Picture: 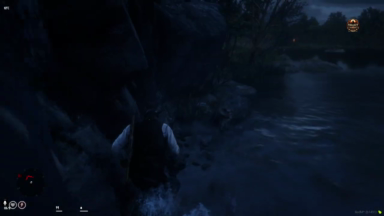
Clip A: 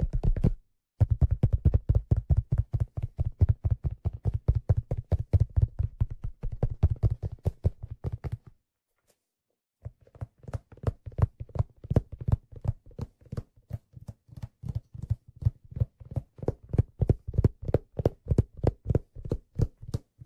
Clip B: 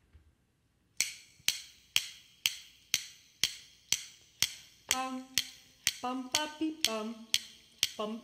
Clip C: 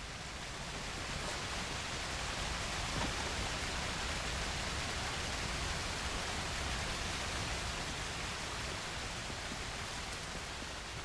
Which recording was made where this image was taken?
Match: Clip C